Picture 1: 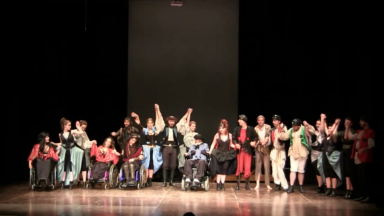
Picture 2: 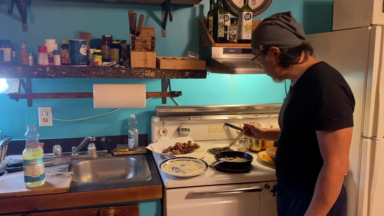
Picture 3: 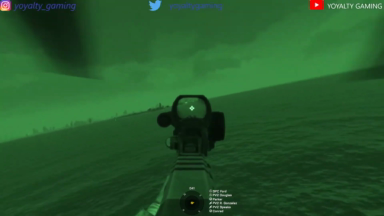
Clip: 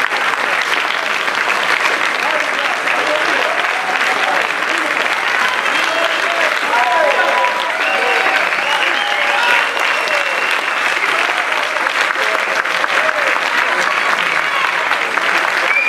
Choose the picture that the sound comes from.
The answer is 1